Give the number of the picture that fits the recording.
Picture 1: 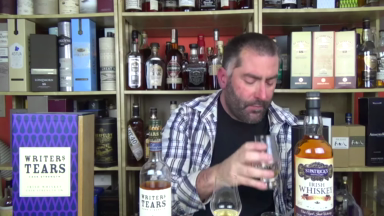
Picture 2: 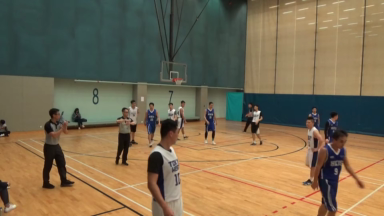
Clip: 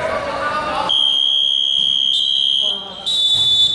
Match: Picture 2